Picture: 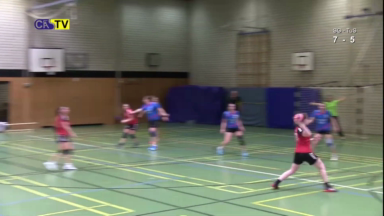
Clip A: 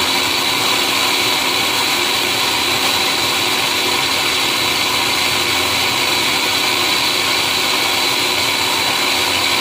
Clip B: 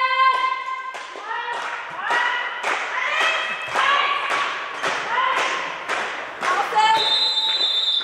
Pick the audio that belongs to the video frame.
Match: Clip B